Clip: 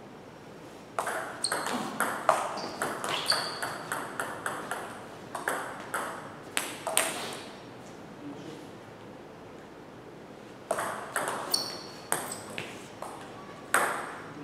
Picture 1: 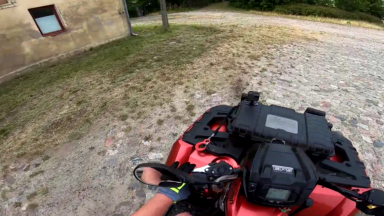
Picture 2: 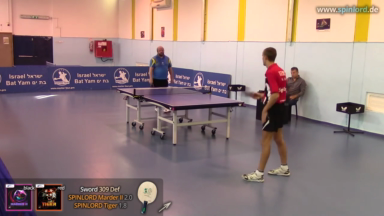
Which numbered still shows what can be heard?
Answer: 2